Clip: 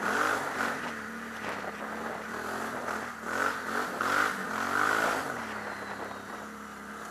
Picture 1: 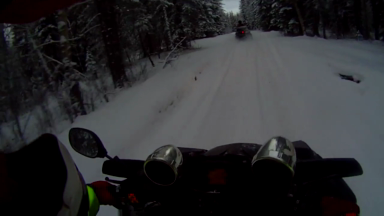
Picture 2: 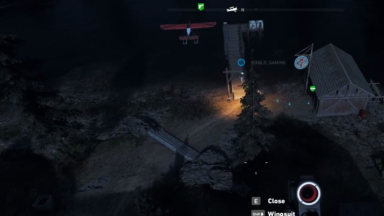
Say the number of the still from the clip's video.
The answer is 1